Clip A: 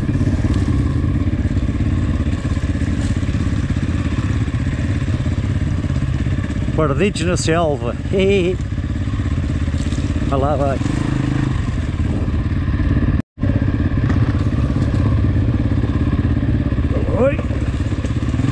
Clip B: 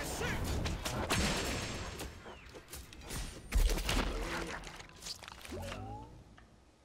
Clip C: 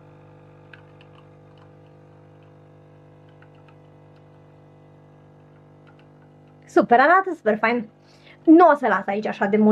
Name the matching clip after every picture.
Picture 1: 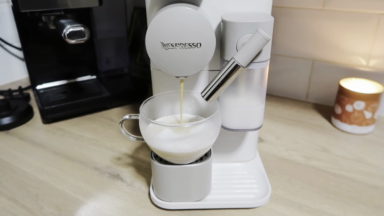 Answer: C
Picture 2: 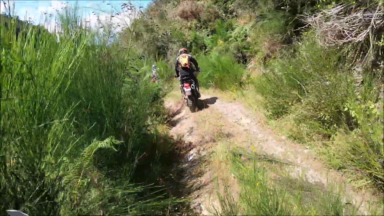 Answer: A